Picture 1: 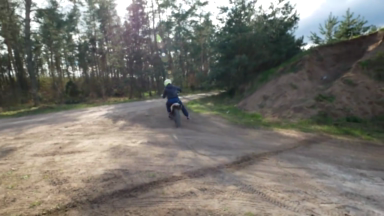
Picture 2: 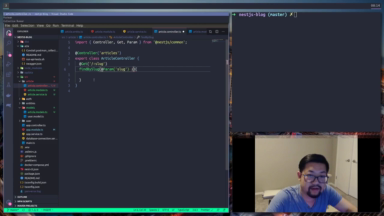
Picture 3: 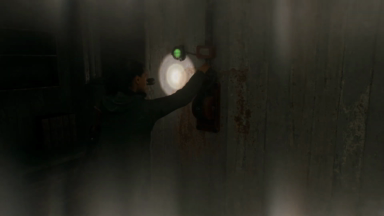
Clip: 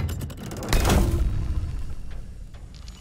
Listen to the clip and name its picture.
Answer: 3